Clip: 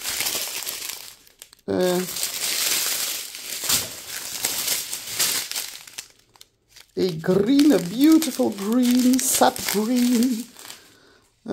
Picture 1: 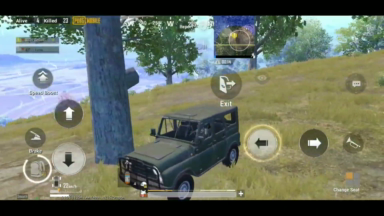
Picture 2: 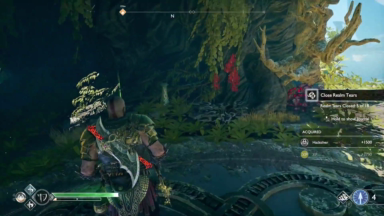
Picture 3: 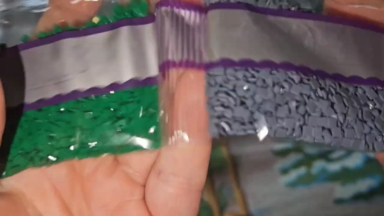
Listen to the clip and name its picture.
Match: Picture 3